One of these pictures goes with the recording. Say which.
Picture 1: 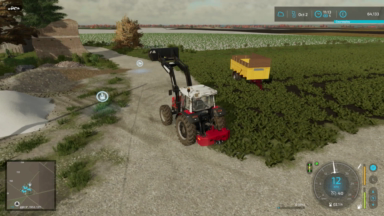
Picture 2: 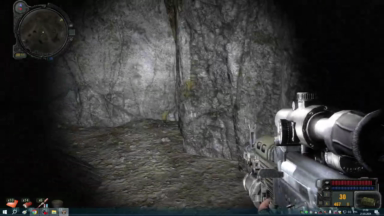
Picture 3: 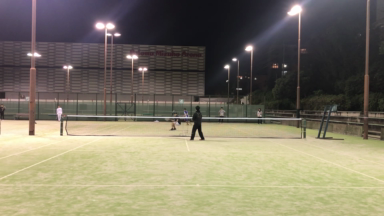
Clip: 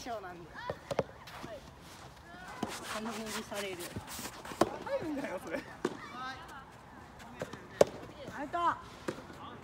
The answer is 3